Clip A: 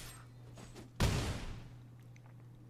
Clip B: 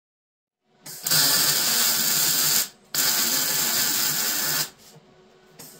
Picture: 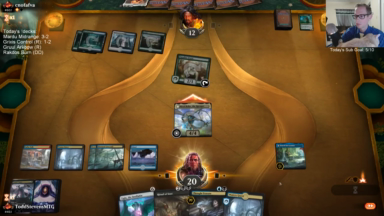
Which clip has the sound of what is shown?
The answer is A